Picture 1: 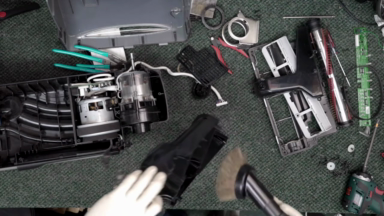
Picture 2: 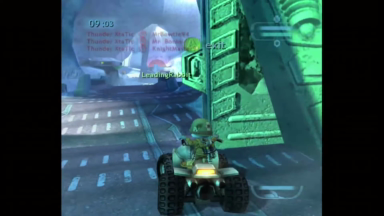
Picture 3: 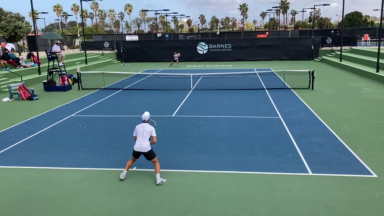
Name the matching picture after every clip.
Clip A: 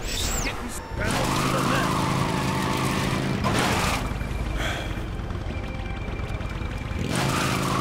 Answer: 2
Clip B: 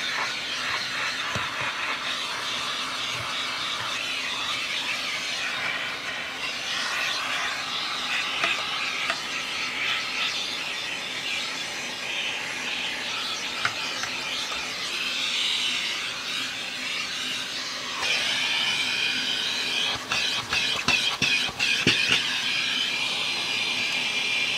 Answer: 1